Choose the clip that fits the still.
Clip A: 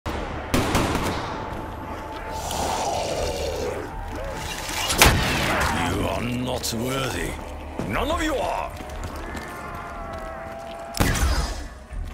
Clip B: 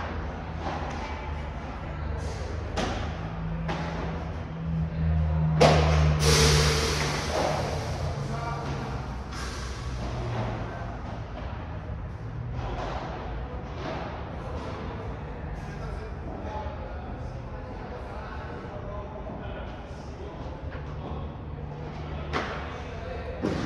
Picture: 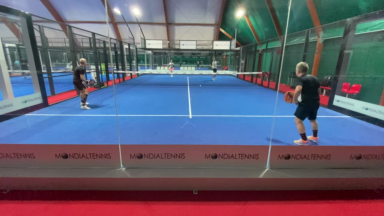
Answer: B